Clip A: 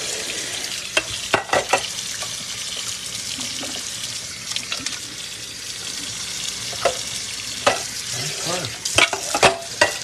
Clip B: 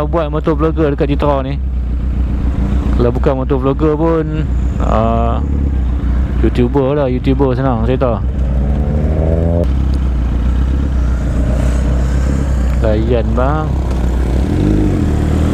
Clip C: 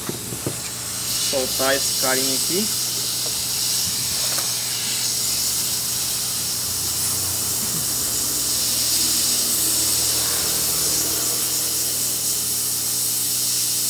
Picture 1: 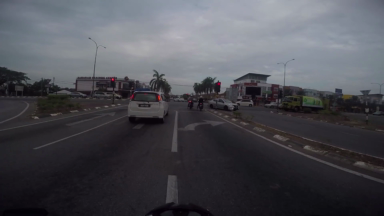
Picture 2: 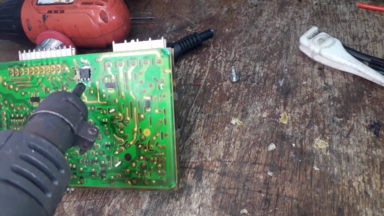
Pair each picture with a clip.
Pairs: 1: B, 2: C